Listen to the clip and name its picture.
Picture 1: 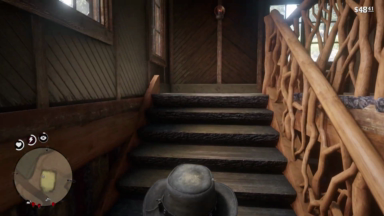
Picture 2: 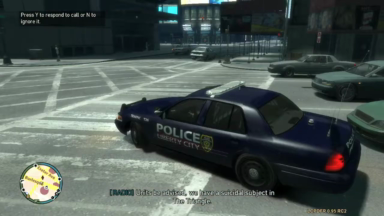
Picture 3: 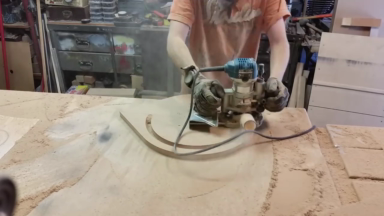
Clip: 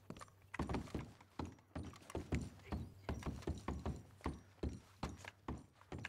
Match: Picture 1